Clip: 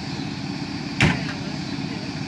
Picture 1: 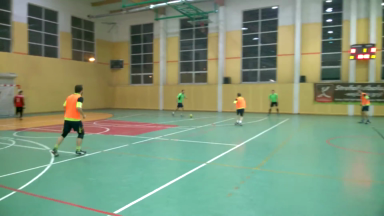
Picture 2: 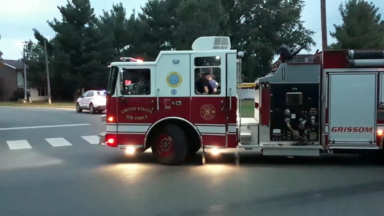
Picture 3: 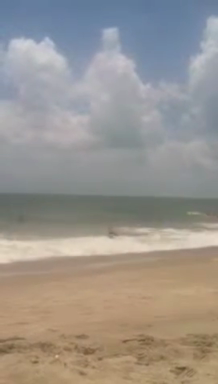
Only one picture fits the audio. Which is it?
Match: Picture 2